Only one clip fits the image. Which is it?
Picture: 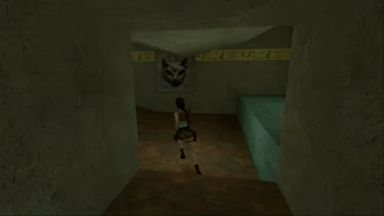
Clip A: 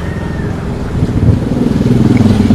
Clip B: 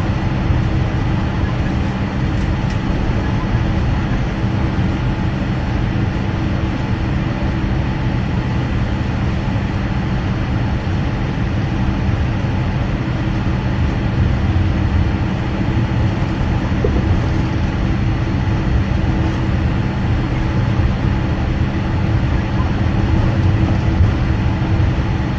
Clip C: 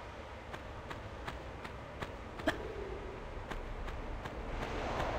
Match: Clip C